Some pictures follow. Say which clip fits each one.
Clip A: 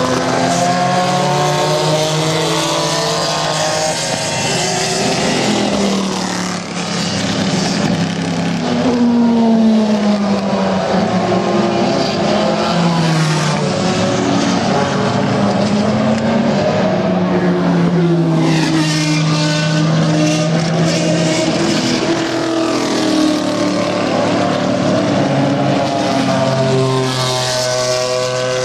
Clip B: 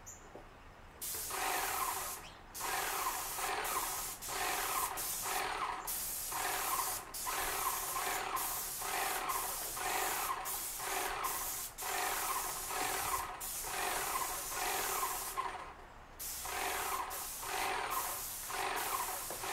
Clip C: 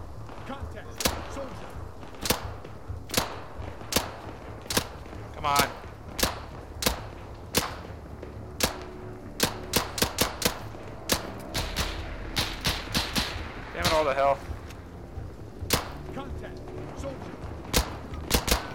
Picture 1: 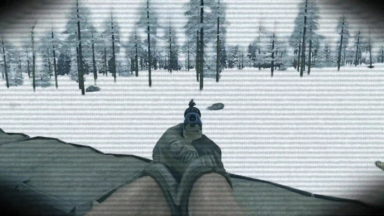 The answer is C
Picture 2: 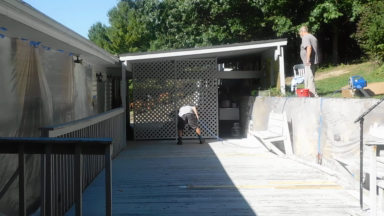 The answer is B